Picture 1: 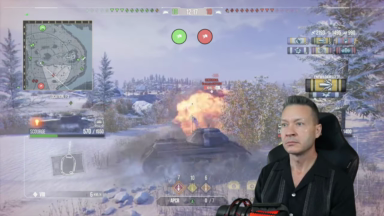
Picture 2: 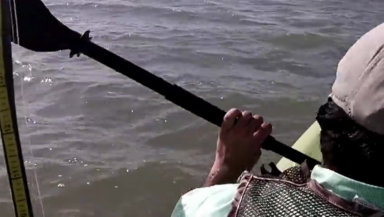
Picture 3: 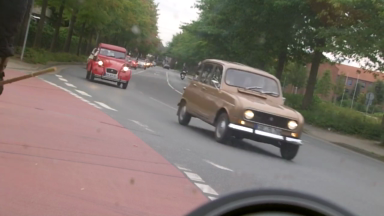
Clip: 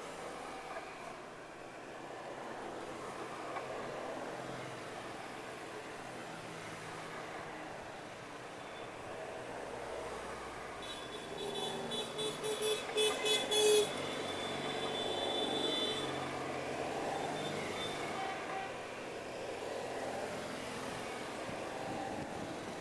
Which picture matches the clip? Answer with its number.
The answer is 3